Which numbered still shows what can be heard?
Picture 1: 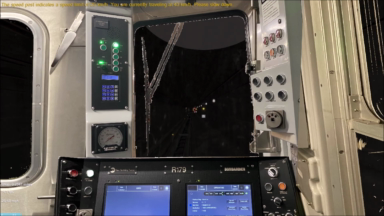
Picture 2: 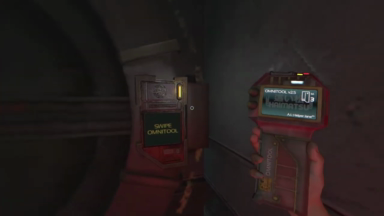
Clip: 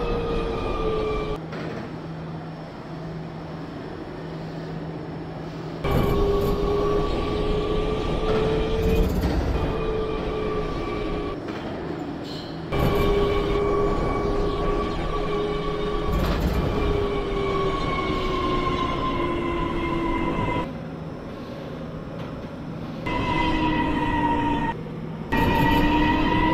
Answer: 1